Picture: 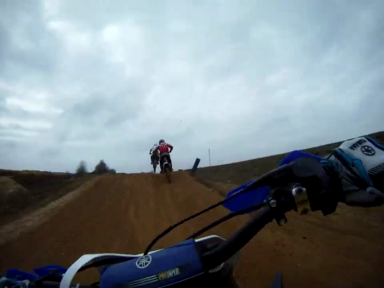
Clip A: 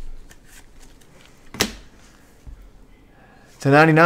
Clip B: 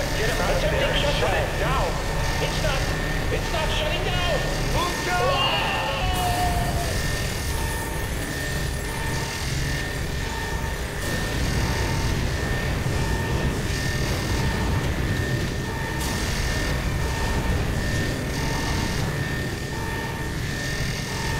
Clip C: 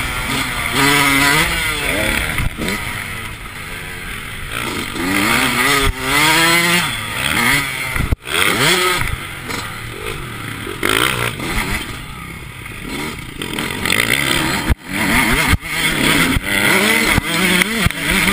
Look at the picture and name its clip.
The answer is C